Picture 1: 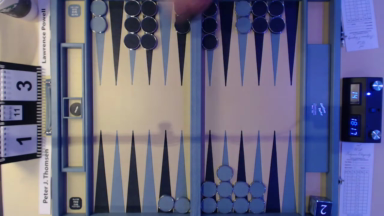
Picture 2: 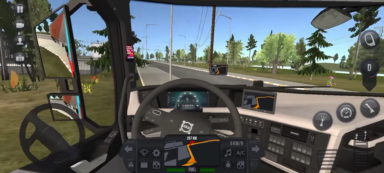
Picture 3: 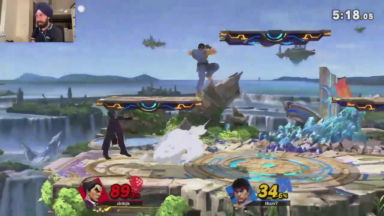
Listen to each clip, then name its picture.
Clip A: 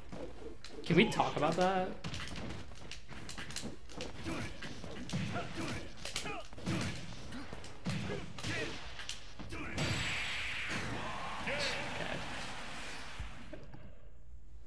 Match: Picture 3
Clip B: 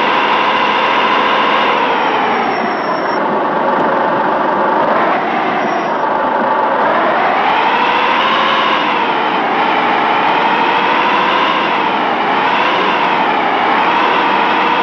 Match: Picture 2